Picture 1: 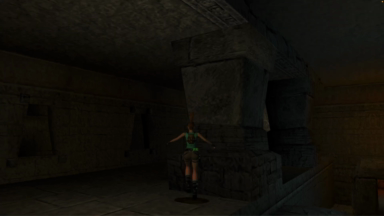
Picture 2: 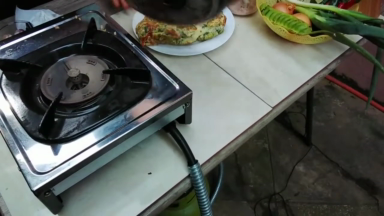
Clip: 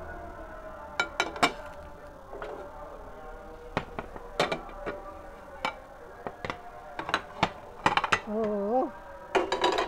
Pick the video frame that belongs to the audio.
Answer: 2